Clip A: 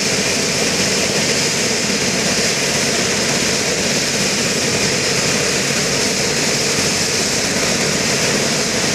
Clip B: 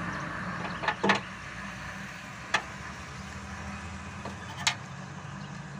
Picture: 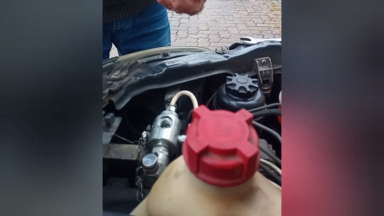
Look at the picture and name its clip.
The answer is B